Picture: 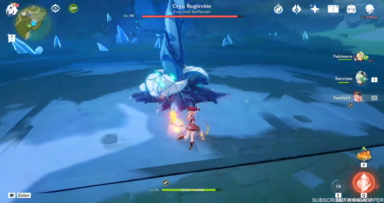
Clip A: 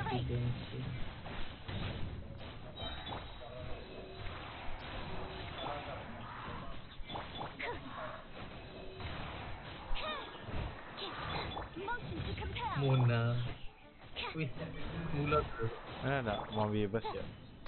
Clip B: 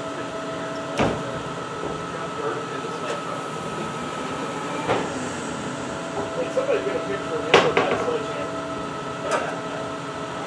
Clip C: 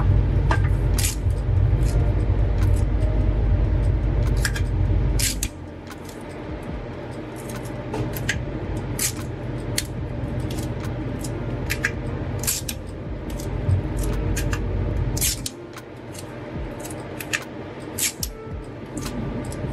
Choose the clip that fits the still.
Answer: A